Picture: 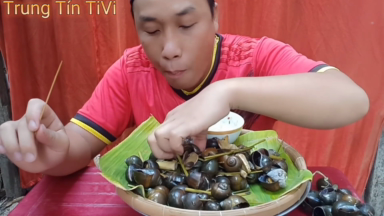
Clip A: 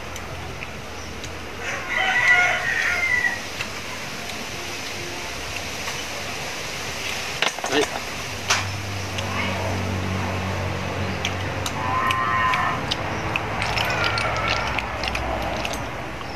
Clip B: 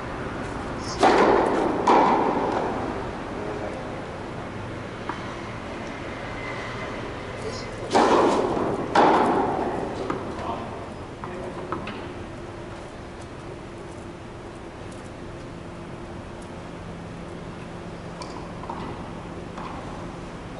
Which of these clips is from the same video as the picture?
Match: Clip A